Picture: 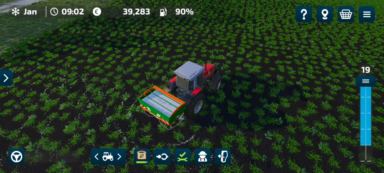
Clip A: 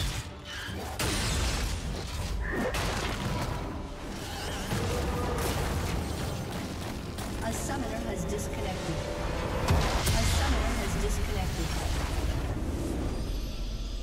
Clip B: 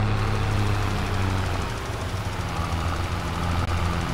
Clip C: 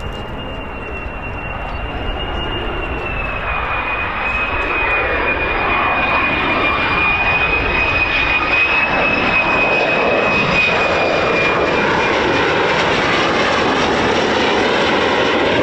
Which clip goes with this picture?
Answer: B